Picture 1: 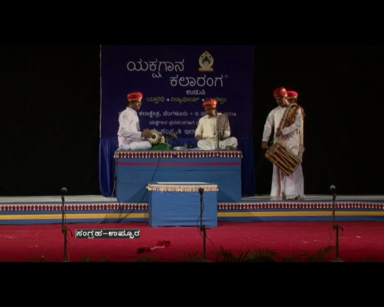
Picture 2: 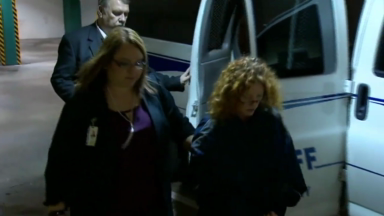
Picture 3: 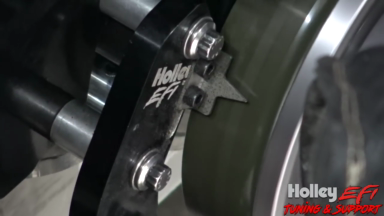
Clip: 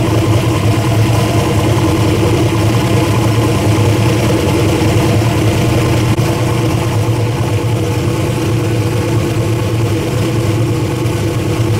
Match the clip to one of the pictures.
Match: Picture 3